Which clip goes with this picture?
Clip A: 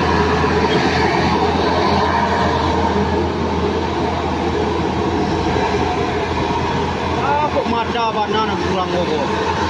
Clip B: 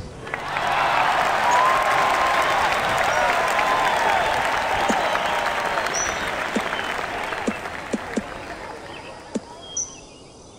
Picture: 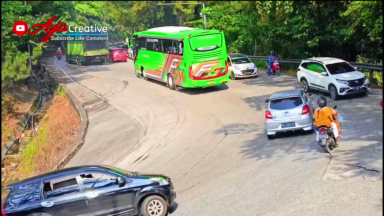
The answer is A